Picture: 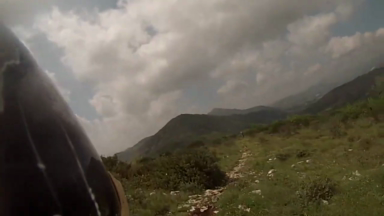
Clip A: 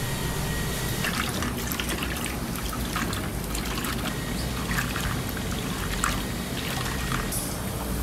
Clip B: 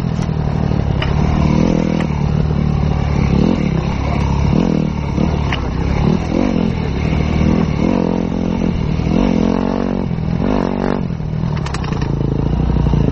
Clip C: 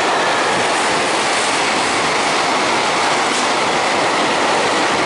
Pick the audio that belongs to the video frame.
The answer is B